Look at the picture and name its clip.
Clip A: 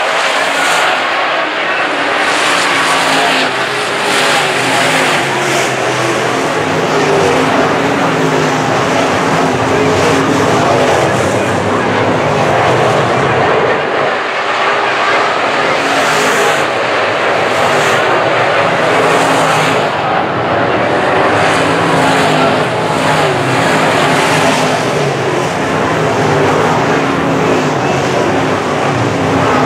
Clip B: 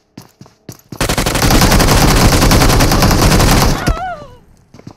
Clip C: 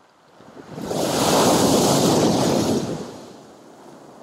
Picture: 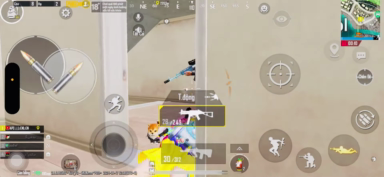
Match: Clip B